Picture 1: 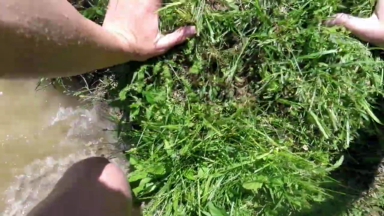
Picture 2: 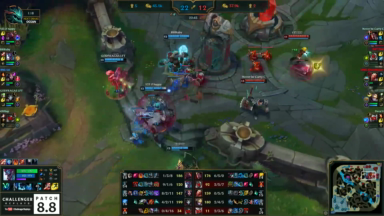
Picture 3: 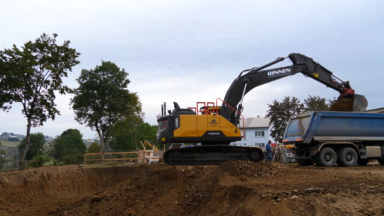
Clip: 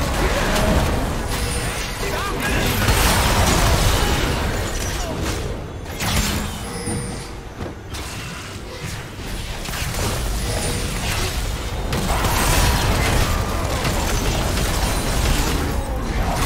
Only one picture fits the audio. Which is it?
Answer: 2